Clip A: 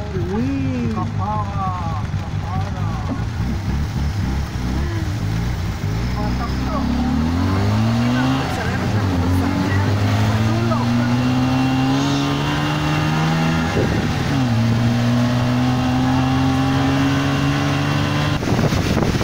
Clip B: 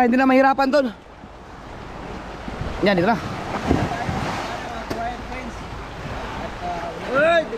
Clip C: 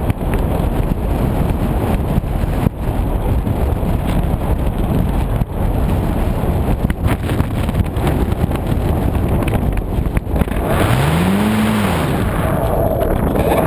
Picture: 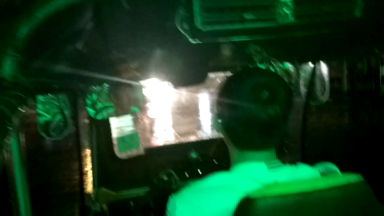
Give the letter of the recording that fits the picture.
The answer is A